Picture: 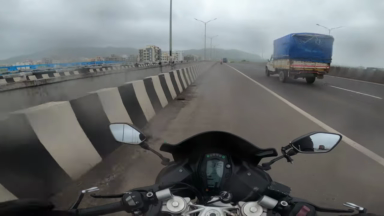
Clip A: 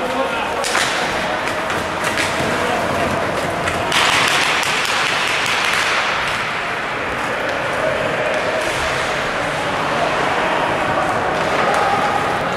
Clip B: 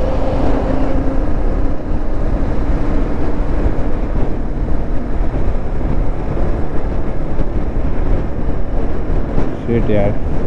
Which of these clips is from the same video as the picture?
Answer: B